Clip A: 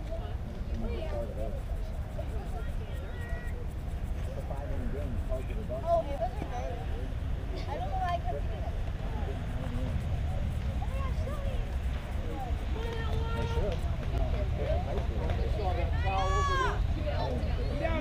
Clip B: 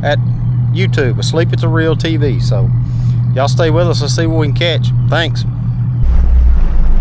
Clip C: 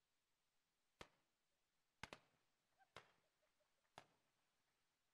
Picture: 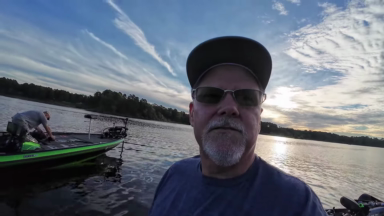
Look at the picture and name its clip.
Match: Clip B